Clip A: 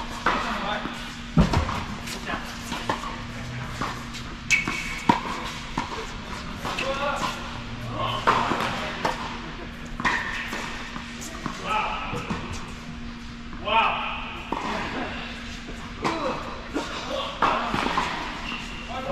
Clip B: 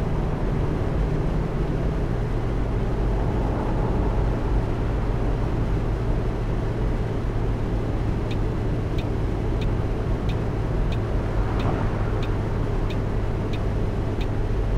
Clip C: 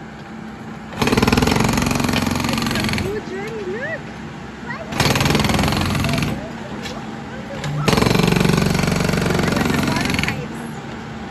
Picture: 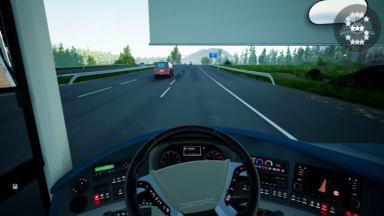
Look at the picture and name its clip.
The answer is B